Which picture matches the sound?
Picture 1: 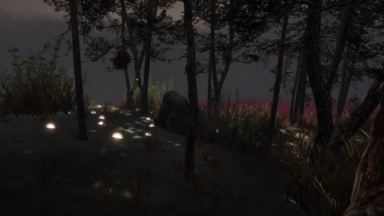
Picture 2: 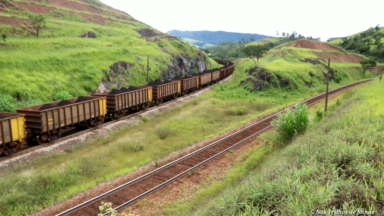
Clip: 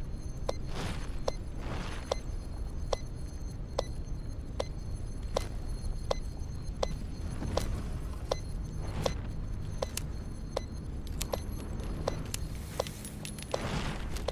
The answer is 1